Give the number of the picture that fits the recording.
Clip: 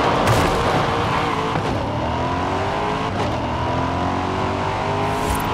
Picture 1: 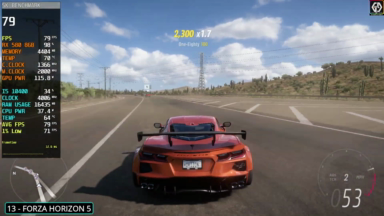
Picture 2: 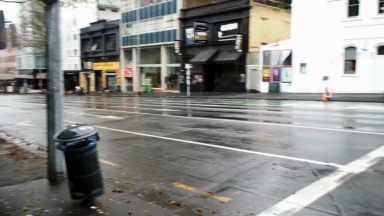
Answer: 1